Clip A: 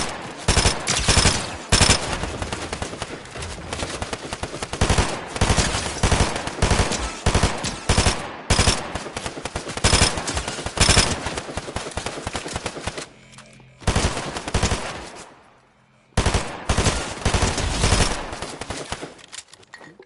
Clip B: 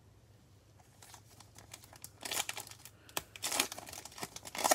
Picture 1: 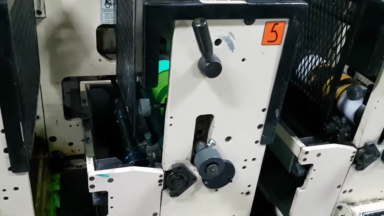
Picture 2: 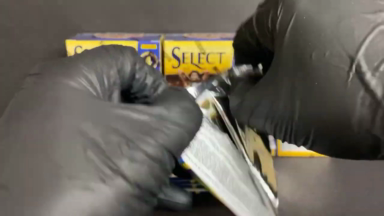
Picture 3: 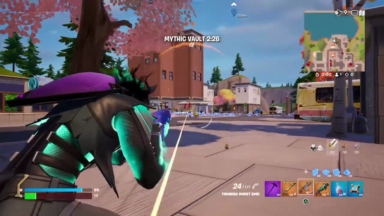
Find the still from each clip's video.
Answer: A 3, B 2